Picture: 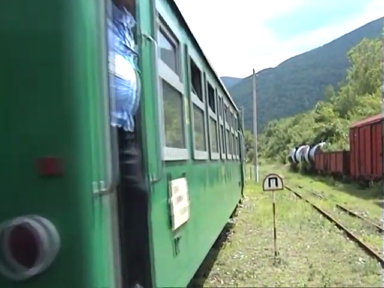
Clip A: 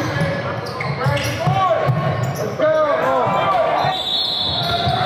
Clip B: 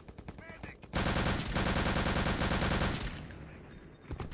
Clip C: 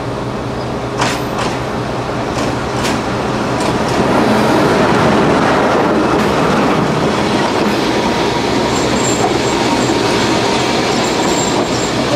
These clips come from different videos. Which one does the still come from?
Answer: C